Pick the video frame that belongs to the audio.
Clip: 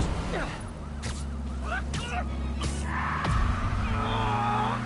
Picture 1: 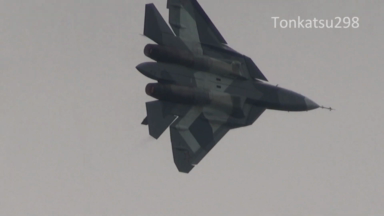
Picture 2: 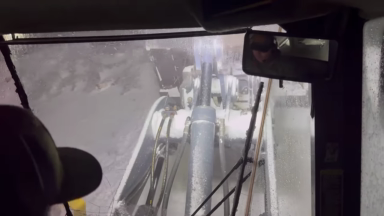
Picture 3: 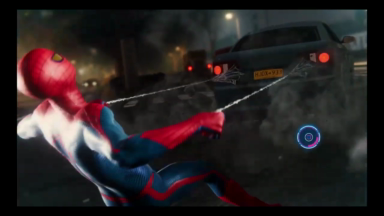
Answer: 3